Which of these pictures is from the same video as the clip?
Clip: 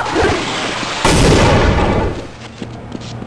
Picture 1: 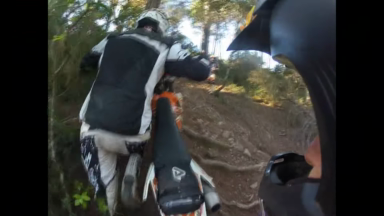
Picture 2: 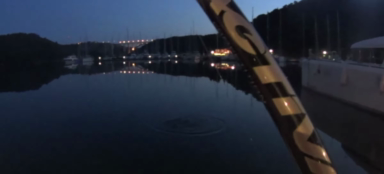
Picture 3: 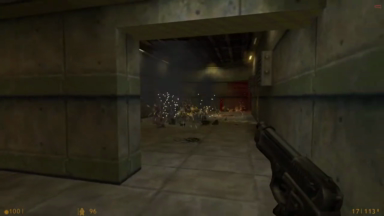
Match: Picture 3